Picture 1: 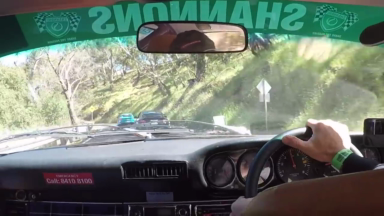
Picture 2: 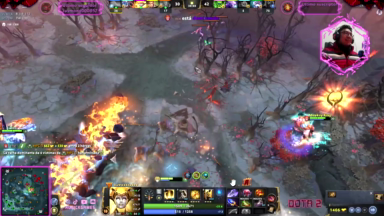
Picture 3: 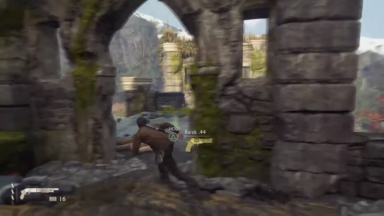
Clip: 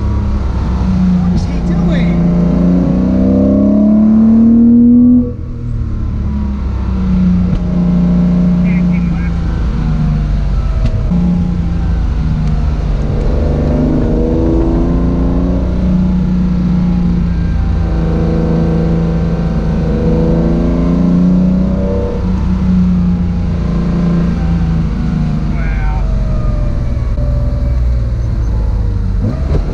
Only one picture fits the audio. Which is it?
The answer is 1